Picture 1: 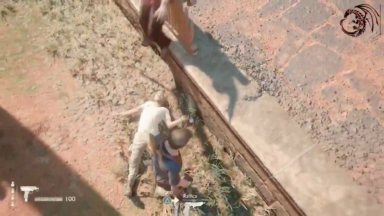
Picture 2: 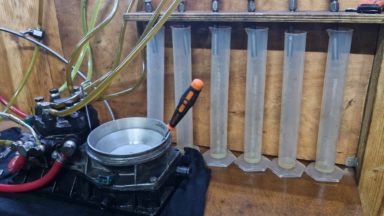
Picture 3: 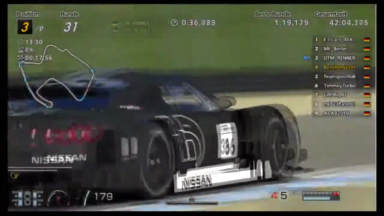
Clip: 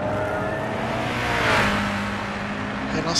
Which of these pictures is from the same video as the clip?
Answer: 3